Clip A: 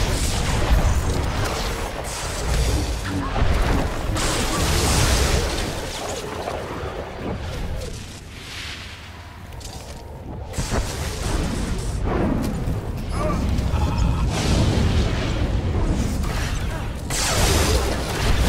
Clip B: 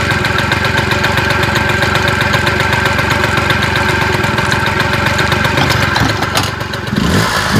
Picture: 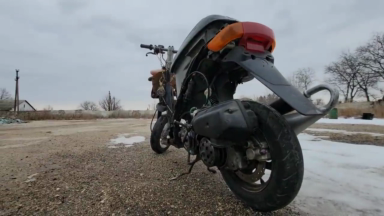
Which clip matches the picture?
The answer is B